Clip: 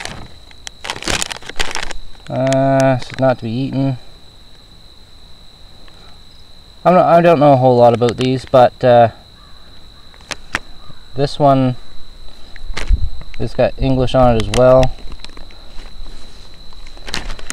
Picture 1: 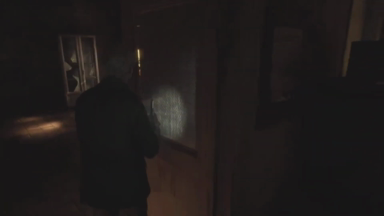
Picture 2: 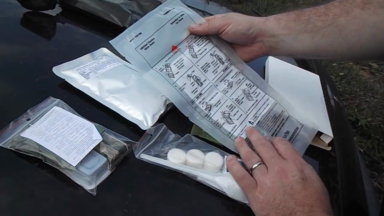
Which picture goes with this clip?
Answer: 2